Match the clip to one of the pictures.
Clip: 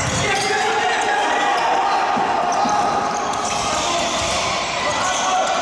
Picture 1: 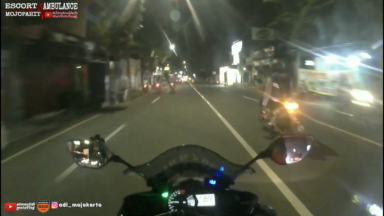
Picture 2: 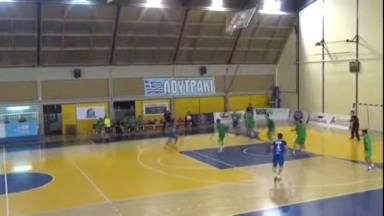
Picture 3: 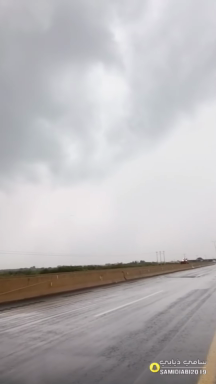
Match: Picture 2